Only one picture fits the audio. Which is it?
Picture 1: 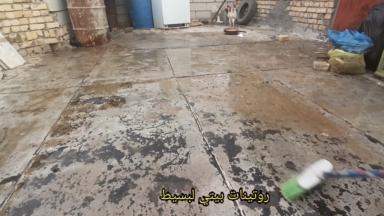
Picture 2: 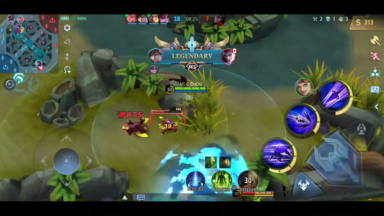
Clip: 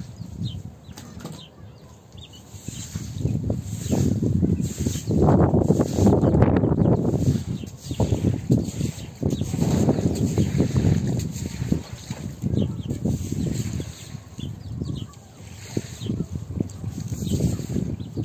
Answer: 1